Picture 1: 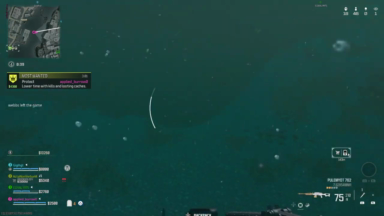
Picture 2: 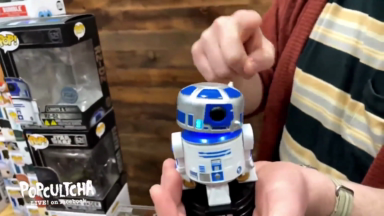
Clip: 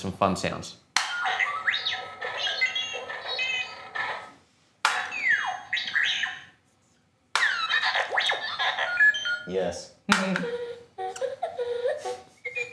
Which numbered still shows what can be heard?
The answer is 2